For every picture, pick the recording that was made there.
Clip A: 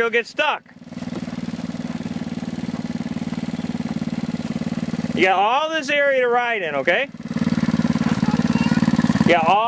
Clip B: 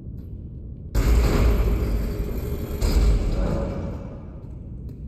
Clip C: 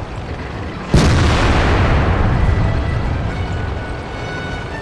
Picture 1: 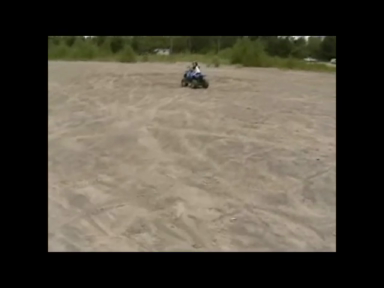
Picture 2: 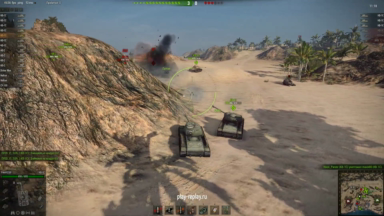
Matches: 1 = A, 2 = C